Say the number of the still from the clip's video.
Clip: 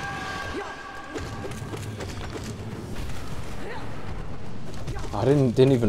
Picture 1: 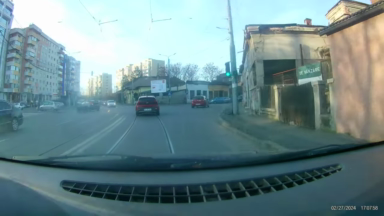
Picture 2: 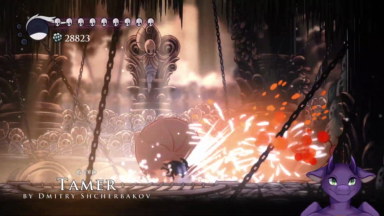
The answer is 2